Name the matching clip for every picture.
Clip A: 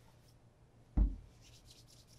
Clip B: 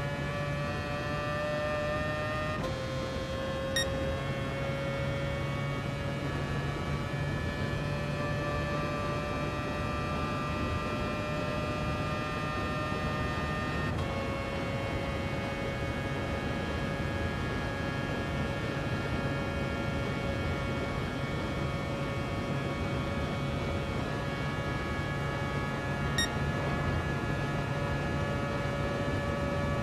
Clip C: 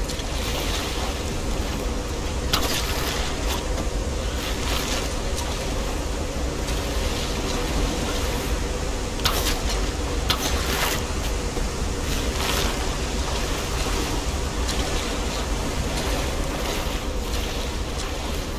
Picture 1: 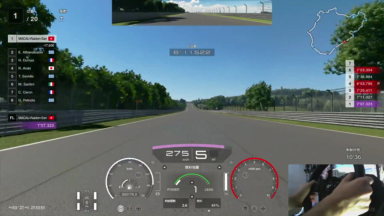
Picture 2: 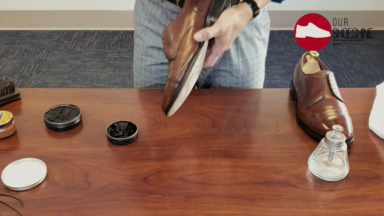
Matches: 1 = B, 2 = A